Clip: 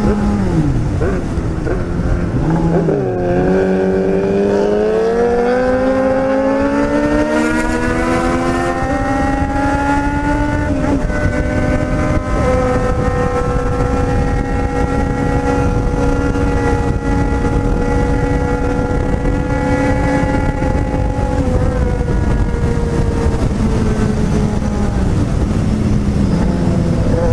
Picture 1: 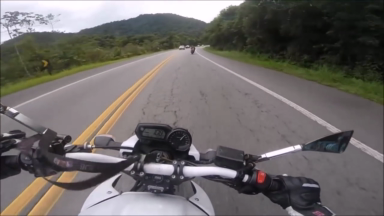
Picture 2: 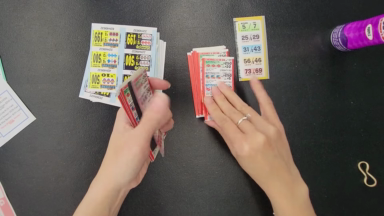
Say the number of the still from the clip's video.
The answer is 1